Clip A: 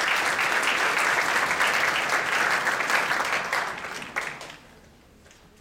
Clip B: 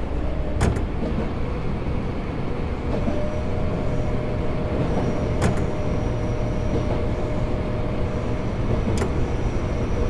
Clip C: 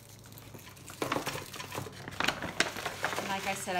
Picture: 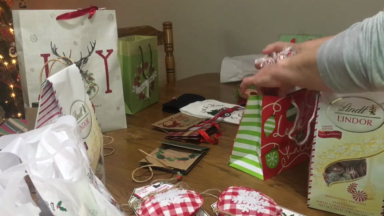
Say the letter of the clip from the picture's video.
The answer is C